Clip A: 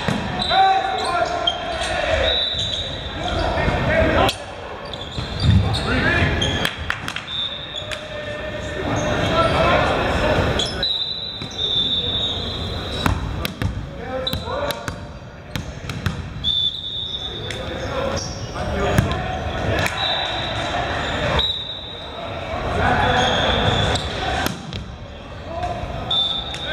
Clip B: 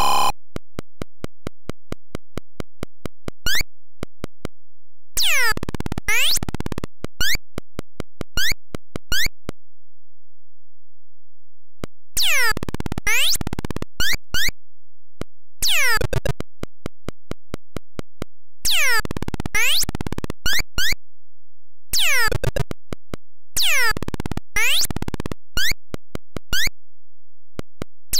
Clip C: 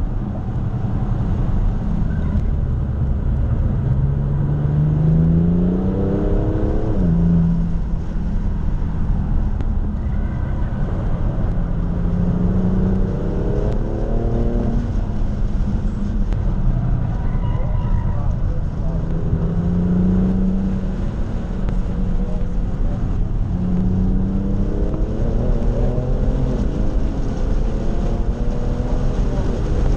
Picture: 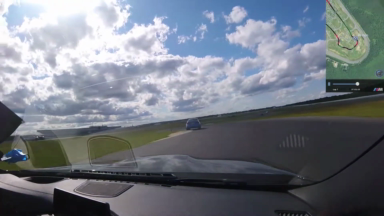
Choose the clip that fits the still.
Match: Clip C